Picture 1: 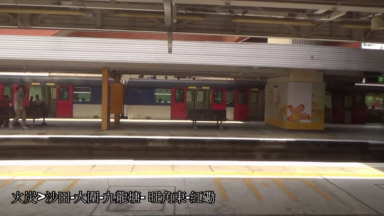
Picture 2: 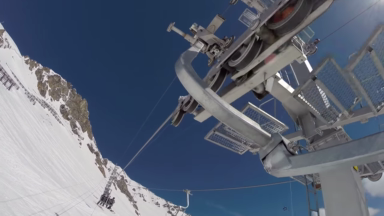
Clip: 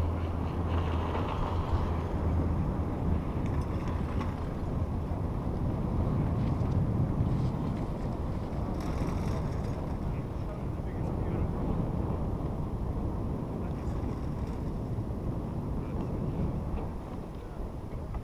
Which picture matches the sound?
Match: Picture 2